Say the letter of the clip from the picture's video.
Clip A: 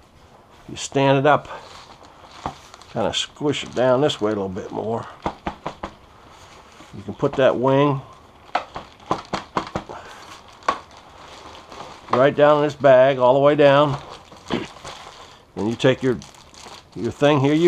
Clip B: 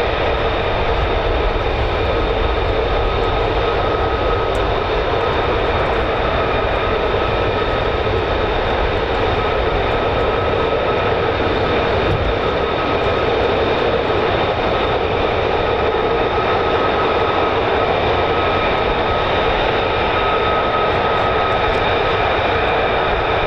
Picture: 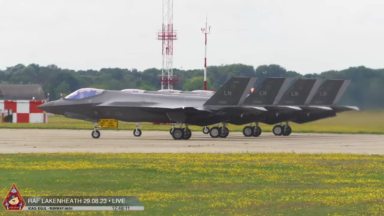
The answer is B